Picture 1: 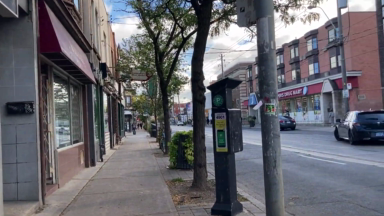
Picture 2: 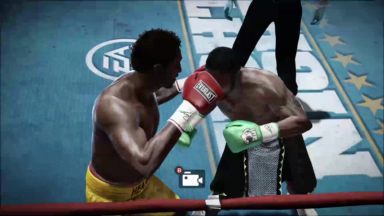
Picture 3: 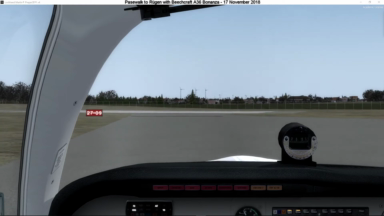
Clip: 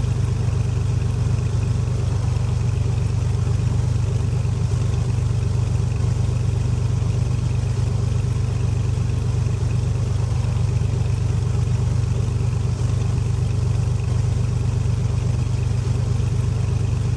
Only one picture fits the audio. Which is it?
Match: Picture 3